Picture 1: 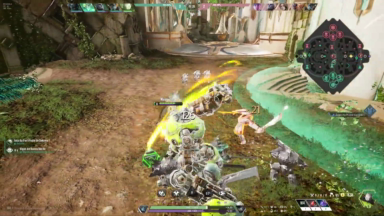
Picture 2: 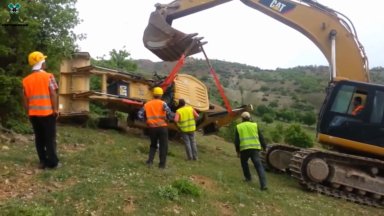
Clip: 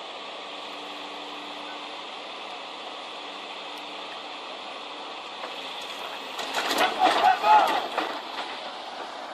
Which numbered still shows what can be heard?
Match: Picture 2